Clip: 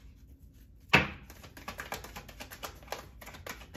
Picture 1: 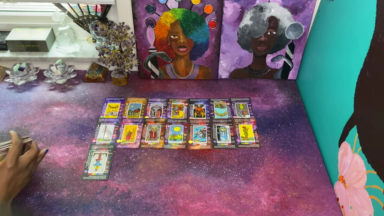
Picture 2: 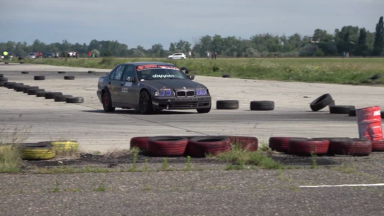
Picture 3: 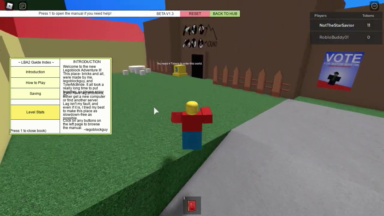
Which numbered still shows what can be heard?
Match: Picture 1